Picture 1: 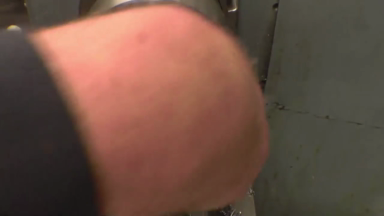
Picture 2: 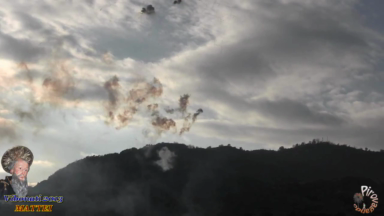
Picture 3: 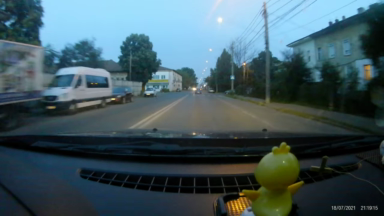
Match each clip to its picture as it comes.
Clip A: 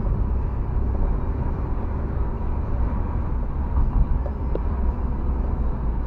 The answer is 3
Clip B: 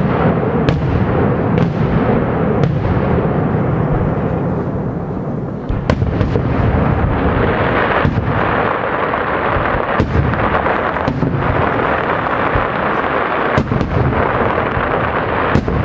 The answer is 2